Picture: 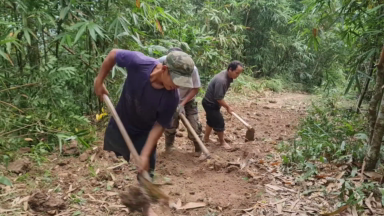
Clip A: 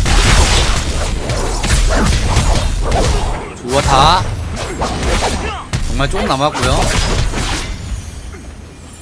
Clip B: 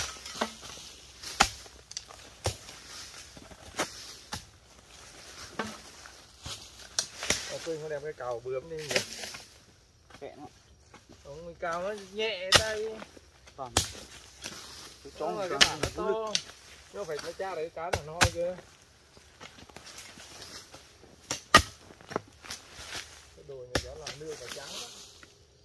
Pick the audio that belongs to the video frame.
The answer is B